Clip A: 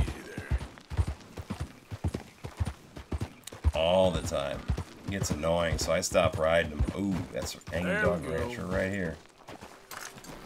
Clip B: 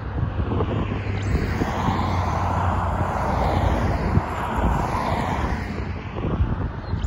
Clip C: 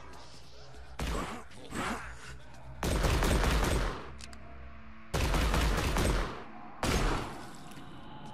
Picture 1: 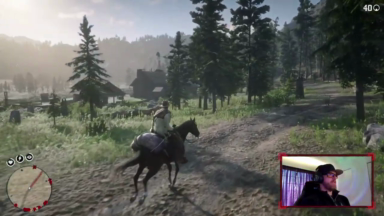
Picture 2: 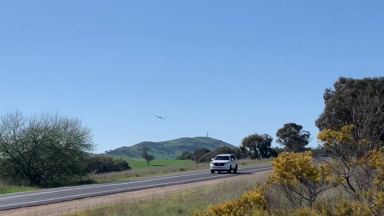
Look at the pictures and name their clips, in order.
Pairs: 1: A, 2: B